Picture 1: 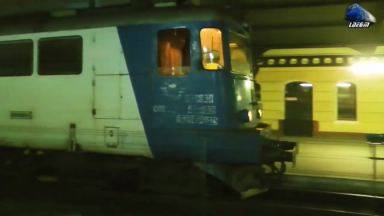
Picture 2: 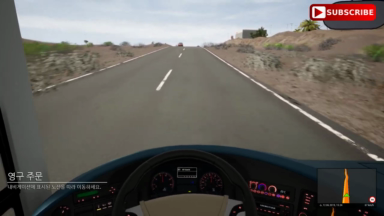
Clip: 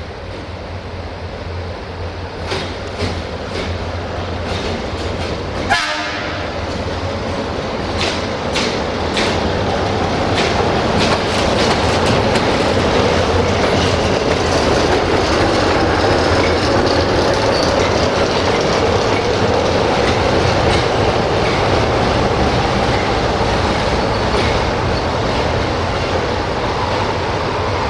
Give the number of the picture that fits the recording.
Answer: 1